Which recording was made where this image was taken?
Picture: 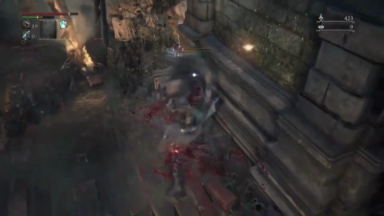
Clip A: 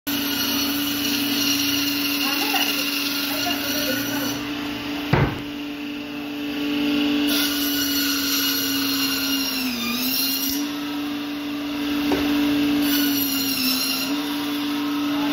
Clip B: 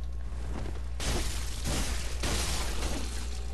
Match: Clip B